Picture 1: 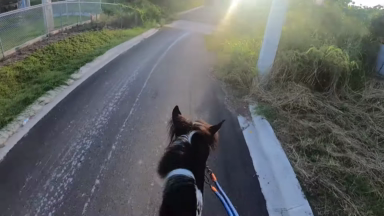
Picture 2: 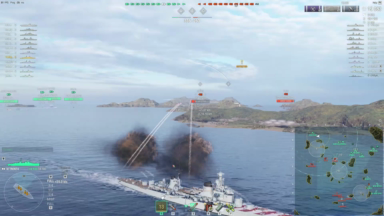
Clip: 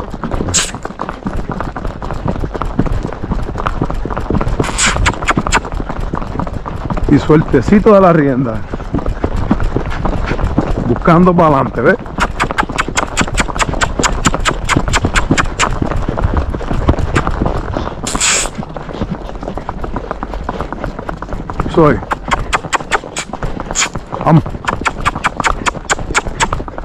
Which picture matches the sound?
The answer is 1